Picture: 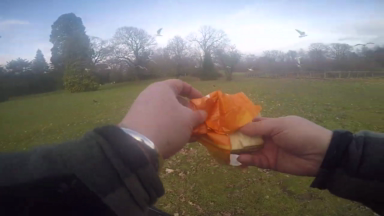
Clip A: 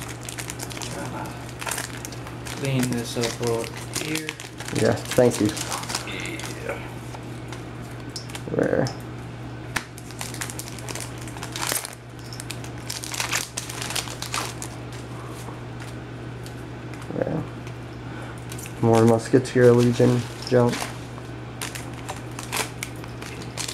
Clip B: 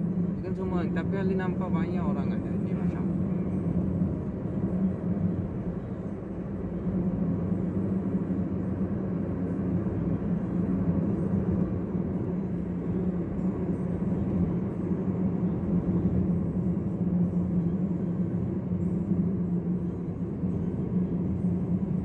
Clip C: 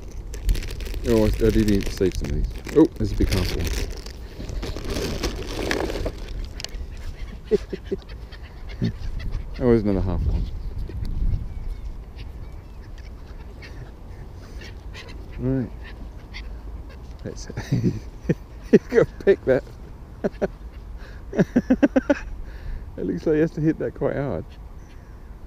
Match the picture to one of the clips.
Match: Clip C